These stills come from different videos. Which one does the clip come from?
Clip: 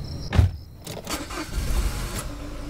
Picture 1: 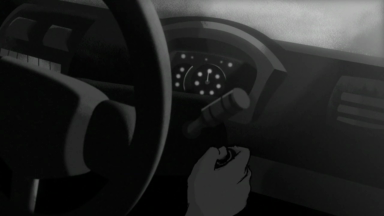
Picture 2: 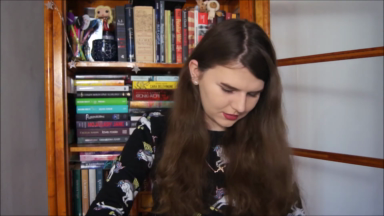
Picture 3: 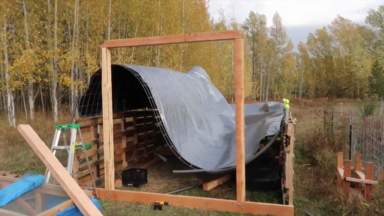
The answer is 1